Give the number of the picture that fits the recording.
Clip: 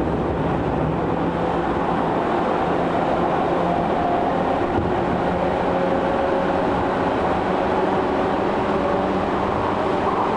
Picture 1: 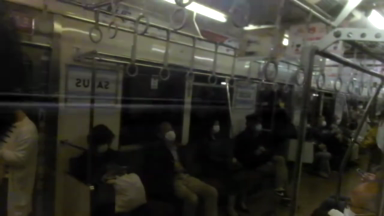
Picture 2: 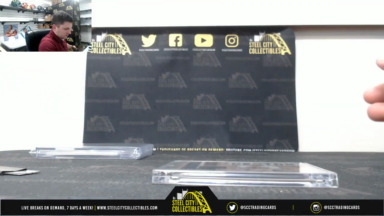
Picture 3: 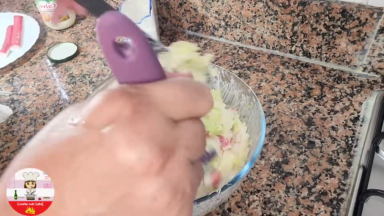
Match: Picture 1